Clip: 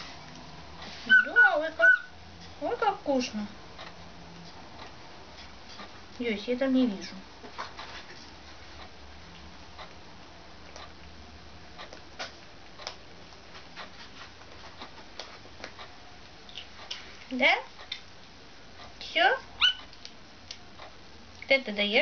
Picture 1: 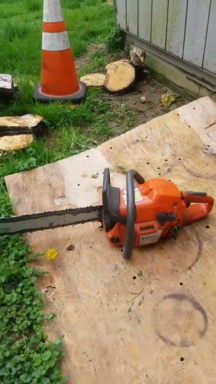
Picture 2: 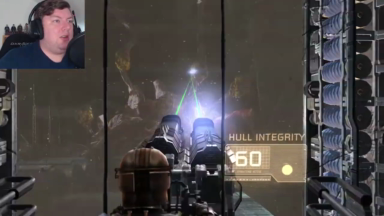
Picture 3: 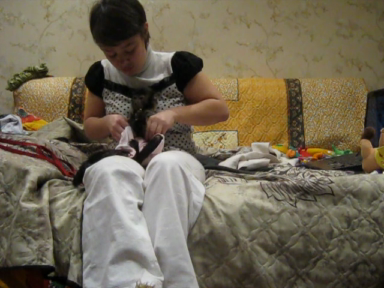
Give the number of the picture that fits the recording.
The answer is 3